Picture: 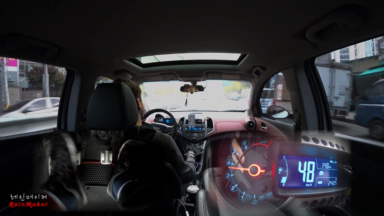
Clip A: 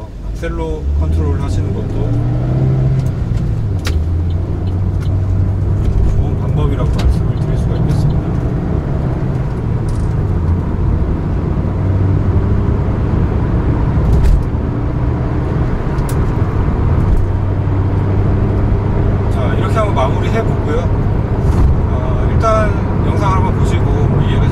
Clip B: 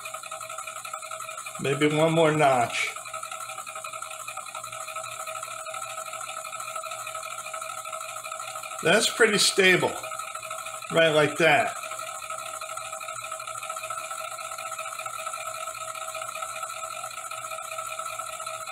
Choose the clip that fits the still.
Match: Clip A